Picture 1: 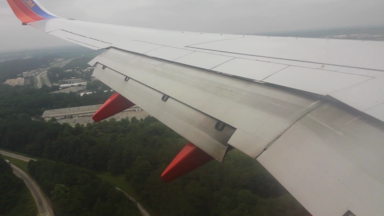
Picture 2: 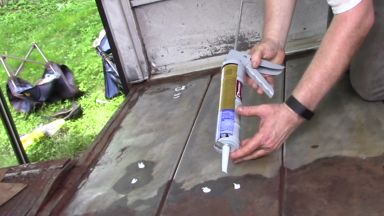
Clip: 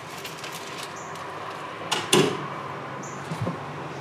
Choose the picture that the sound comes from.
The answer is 2